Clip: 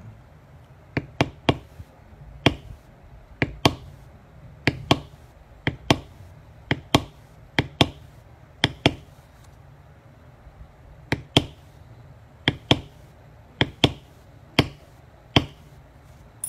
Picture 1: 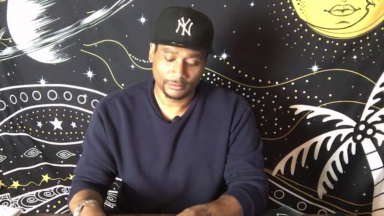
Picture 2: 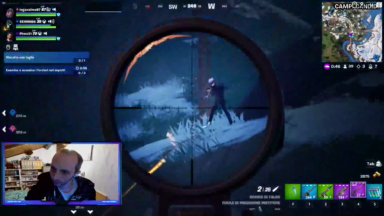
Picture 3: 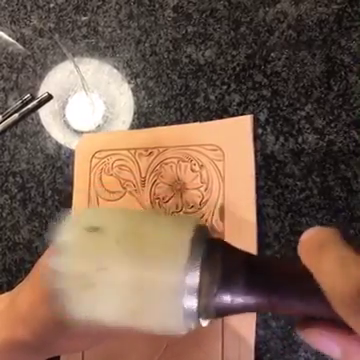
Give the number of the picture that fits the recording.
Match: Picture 3